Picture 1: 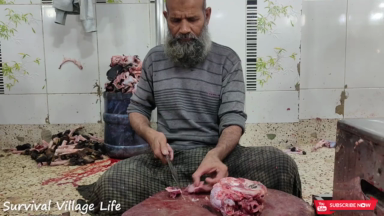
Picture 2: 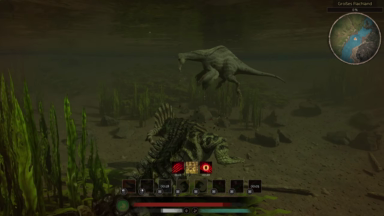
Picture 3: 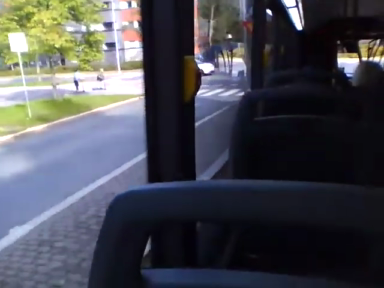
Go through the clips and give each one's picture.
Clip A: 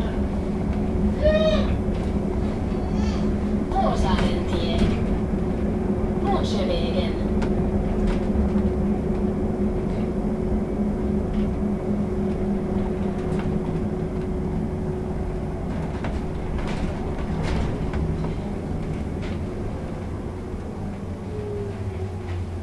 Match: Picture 3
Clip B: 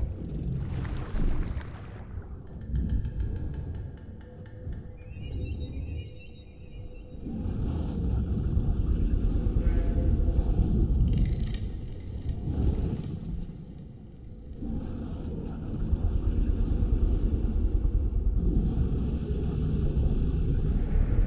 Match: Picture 2